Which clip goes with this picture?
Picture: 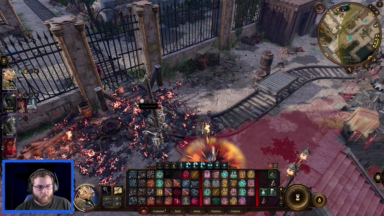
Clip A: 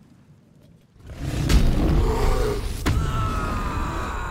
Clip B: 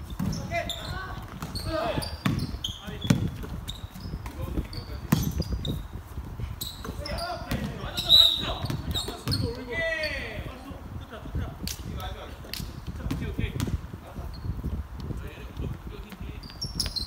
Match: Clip A